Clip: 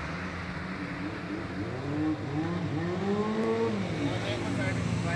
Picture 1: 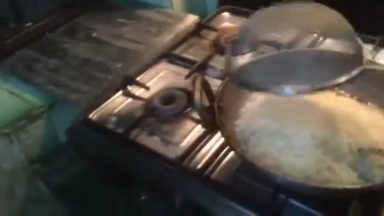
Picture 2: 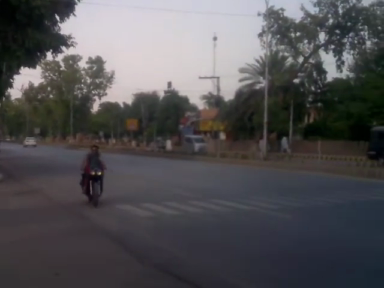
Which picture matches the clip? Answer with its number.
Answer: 2